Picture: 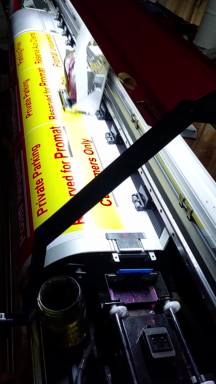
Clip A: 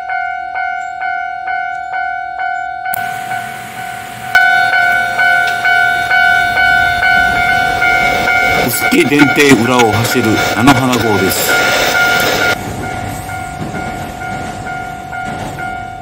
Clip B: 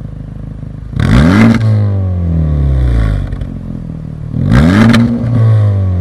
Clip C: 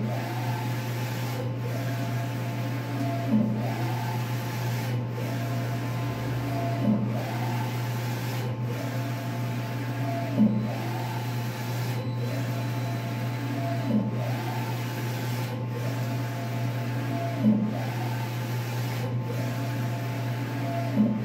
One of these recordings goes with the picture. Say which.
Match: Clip C